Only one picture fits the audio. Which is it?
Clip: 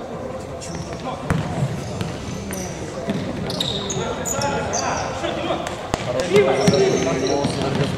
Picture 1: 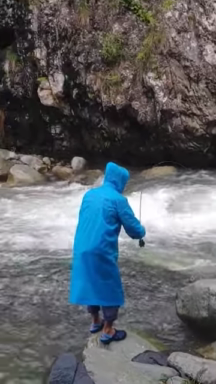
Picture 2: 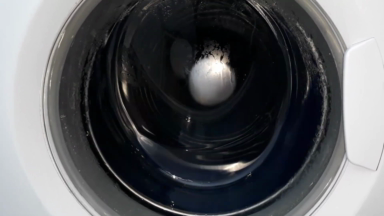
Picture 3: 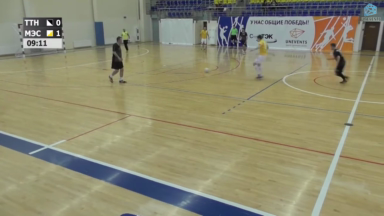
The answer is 3